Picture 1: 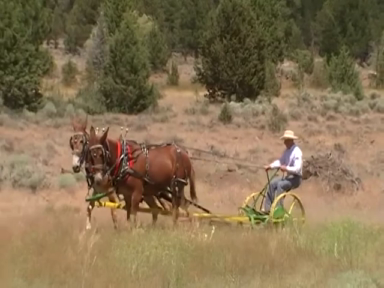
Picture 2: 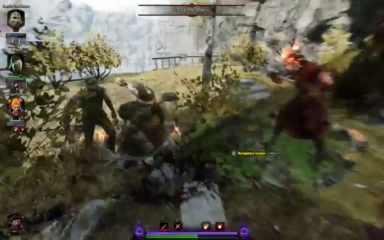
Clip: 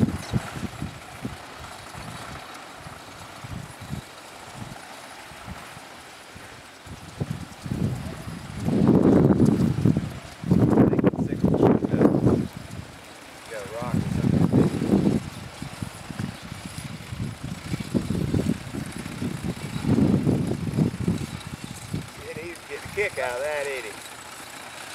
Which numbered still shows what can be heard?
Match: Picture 1